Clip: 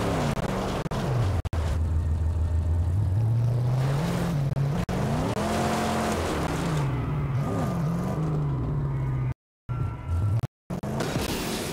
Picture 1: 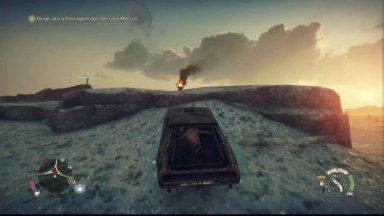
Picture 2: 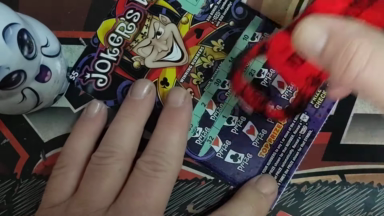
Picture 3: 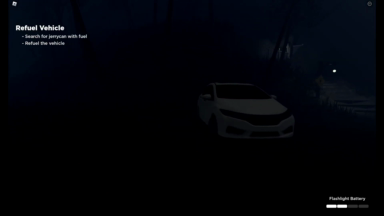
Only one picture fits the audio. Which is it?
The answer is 1